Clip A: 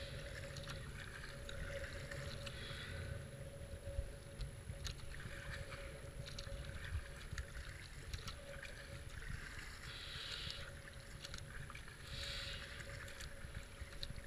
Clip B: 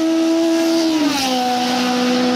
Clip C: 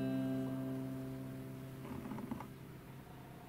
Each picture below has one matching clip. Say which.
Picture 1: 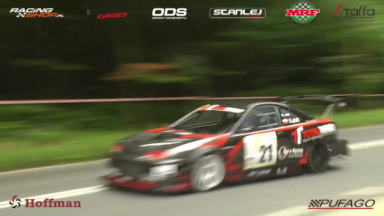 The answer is B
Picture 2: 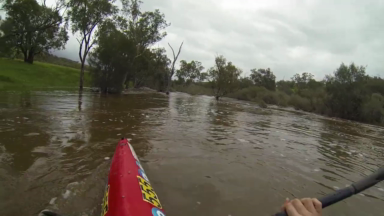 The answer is A